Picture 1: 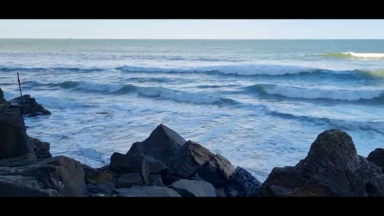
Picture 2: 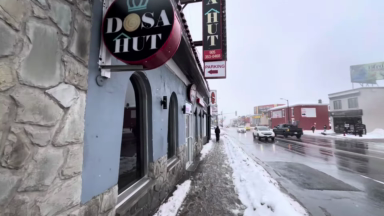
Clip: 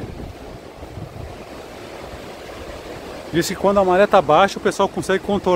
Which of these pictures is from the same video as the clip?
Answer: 1